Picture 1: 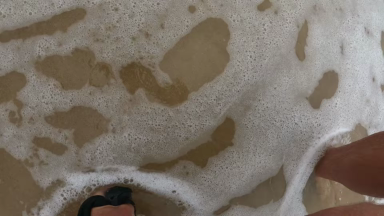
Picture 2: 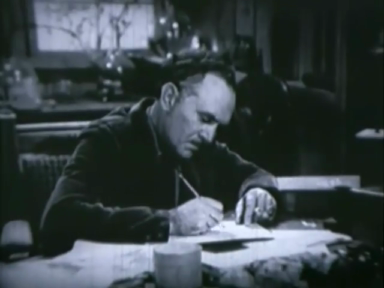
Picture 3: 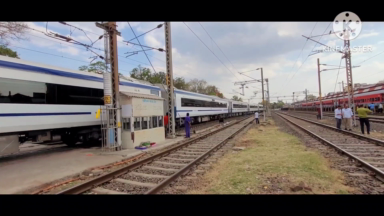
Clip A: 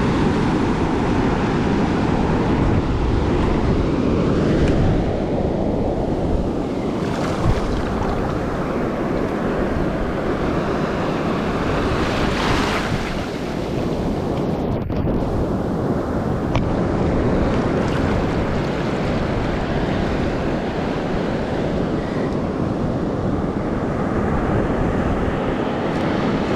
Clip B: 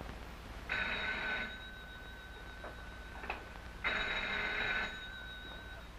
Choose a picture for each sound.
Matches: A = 1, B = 2